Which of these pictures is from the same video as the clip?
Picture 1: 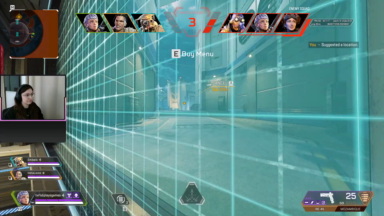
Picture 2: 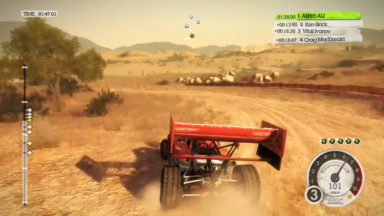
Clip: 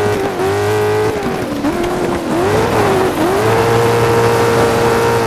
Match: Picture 2